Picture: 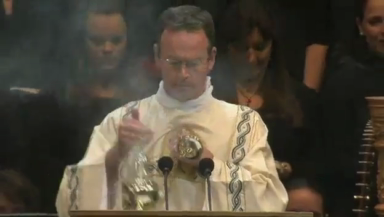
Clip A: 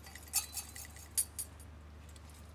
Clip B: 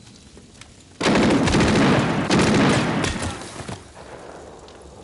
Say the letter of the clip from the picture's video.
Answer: A